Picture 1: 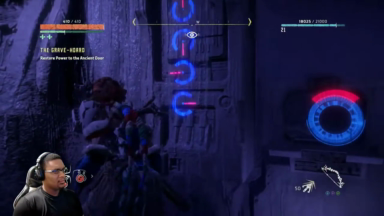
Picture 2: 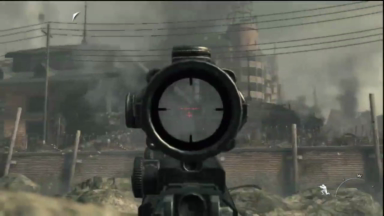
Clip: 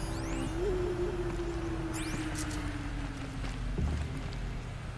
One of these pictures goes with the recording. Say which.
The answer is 1